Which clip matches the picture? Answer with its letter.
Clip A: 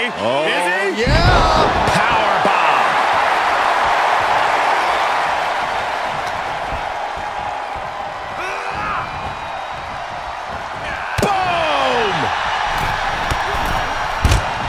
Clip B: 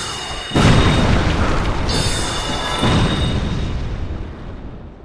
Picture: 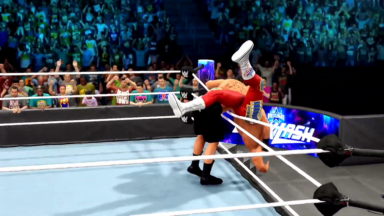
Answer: A